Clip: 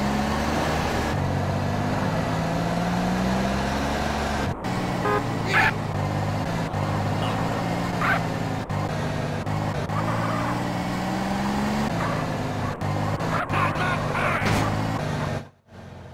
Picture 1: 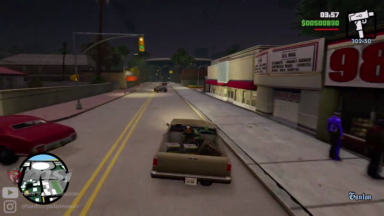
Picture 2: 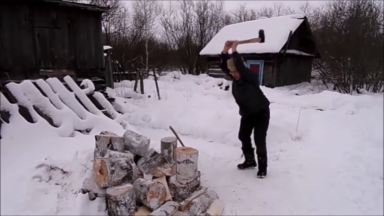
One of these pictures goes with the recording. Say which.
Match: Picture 1